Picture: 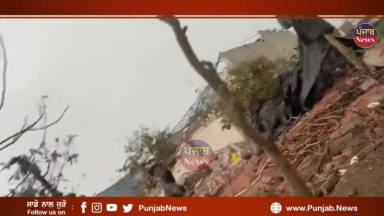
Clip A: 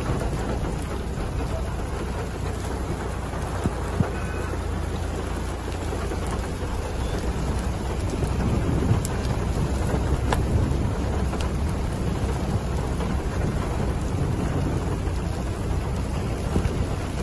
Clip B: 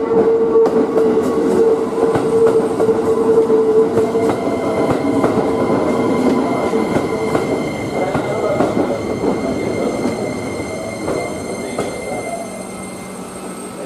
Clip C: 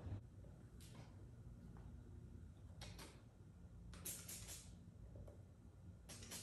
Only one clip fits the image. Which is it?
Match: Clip A